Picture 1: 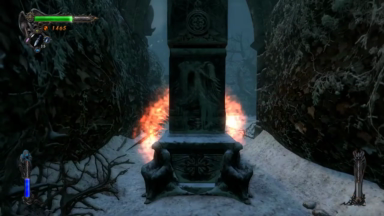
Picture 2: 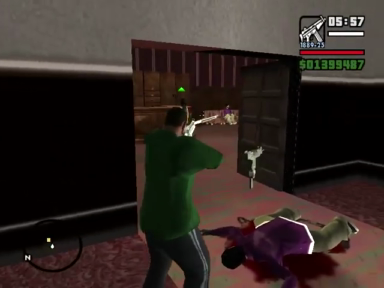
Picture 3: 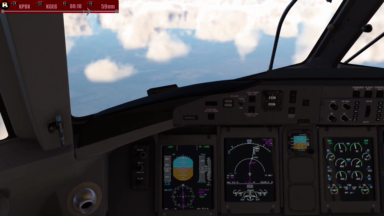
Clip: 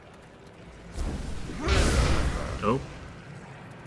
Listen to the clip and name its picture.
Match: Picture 1